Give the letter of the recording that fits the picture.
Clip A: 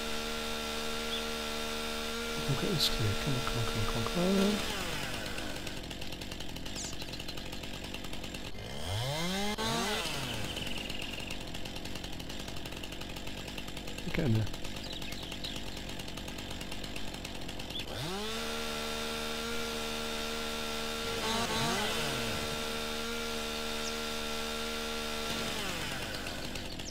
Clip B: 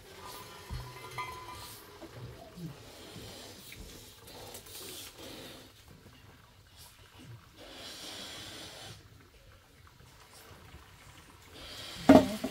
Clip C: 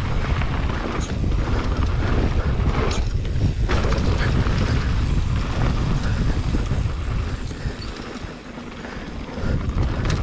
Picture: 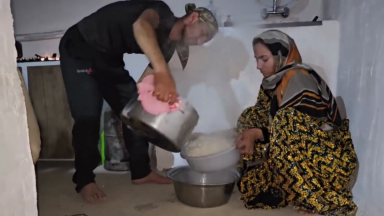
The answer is B